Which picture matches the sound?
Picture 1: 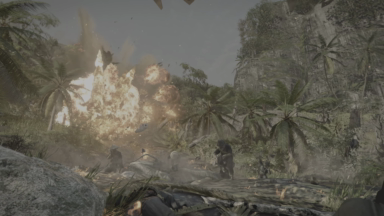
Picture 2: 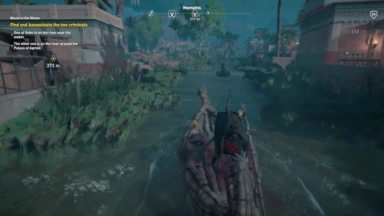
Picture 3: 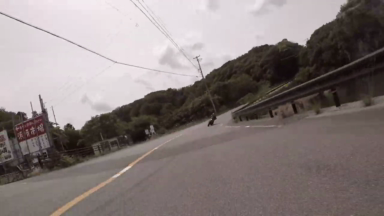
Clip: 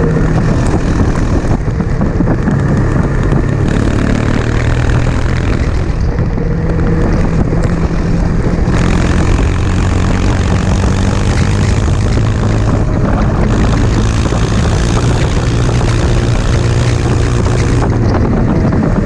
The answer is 3